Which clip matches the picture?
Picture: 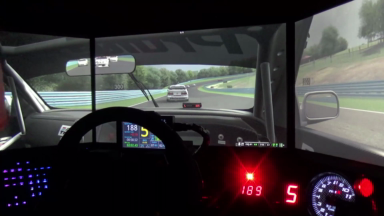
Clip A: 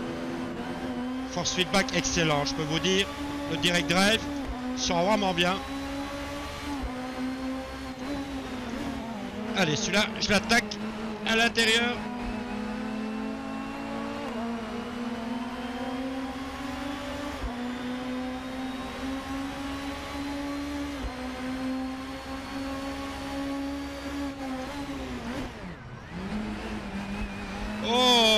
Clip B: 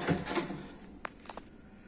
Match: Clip A